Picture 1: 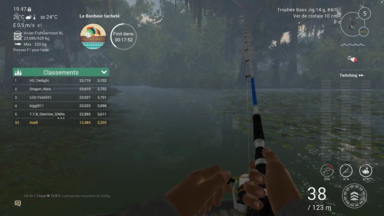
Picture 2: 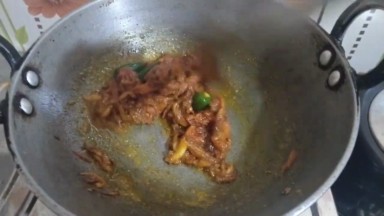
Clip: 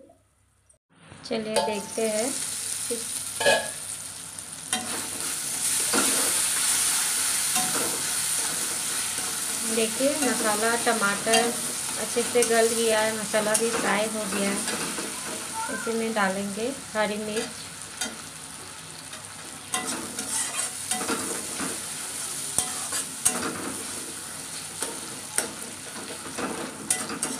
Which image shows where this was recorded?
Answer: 2